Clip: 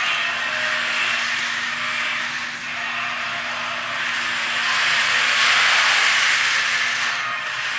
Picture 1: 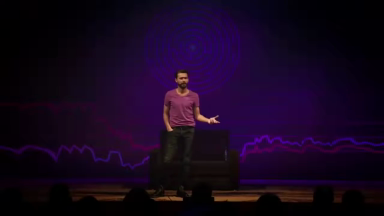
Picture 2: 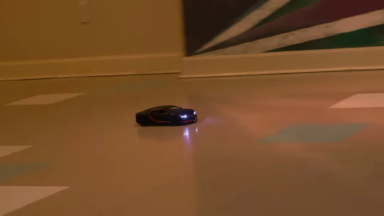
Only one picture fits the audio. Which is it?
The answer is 2